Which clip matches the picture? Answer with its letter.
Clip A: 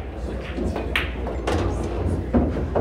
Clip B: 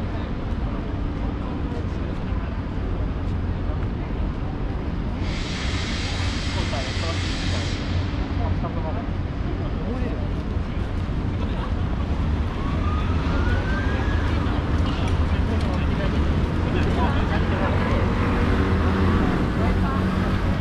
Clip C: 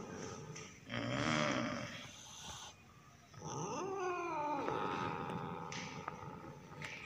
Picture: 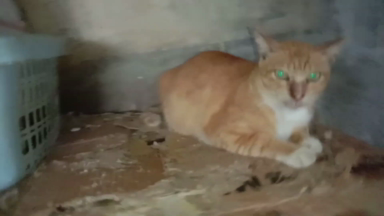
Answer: C